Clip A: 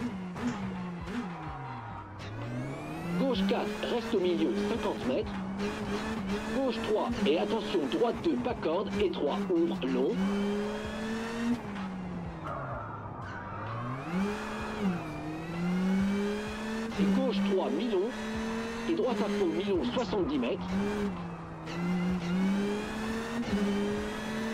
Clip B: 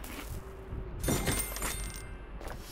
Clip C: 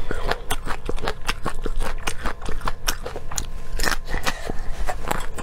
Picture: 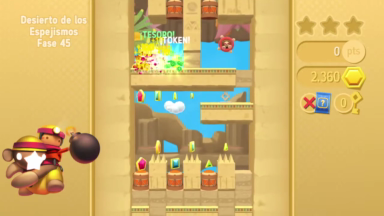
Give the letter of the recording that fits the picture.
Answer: B